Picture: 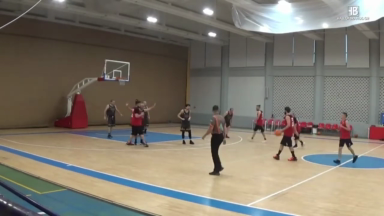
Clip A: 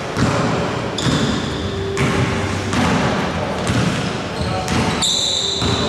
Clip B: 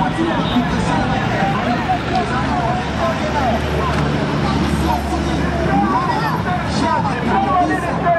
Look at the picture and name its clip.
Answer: A